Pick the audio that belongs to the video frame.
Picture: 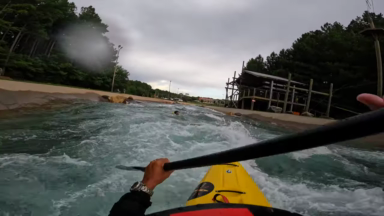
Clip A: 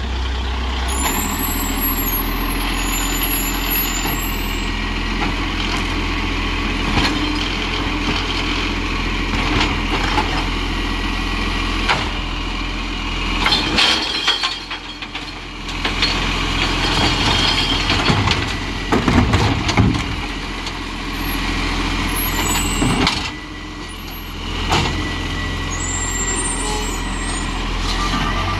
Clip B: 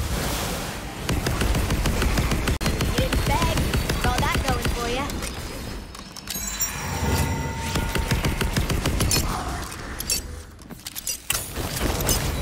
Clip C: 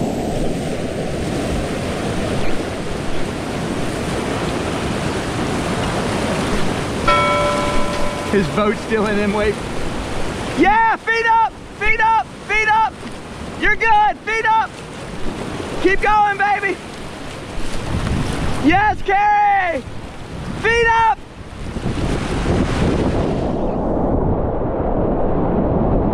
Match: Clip C